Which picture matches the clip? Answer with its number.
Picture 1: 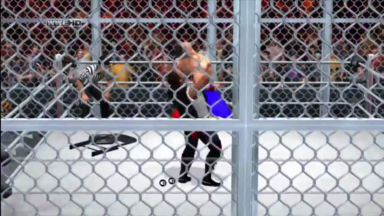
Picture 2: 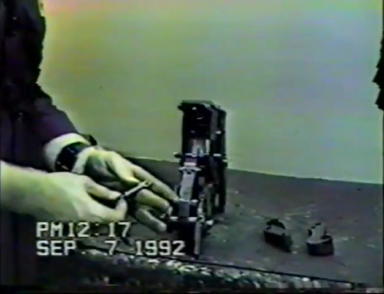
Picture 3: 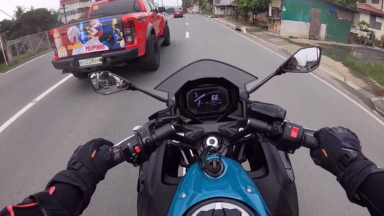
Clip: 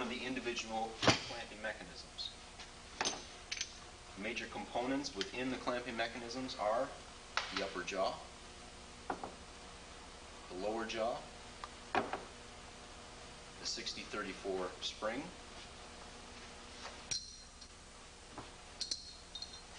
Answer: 2